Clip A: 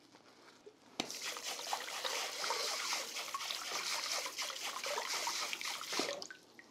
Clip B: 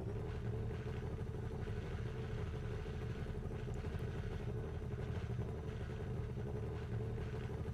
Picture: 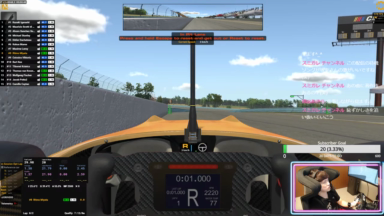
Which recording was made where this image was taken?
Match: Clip B